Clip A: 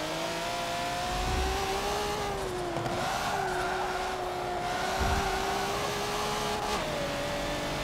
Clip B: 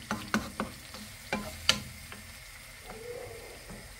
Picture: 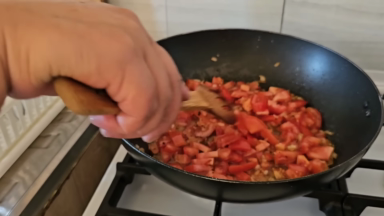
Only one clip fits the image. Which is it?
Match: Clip B